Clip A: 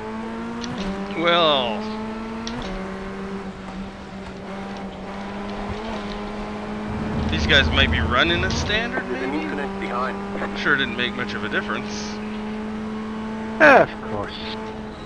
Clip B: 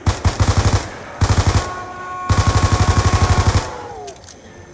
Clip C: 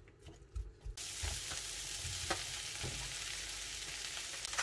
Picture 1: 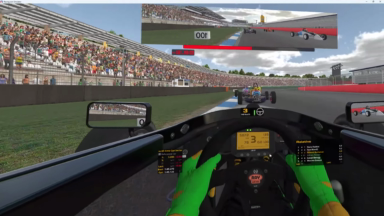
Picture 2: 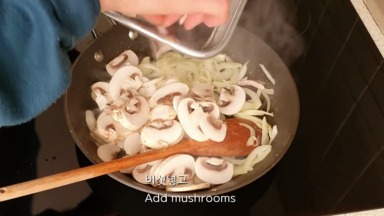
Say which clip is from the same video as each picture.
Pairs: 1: A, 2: C